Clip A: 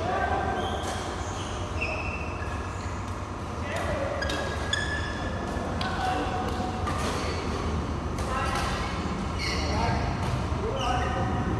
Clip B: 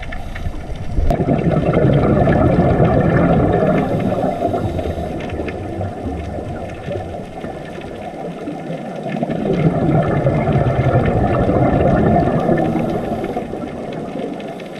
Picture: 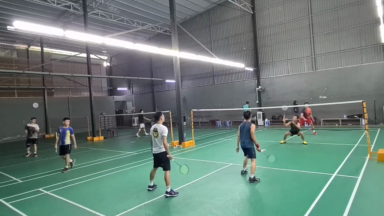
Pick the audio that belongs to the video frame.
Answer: A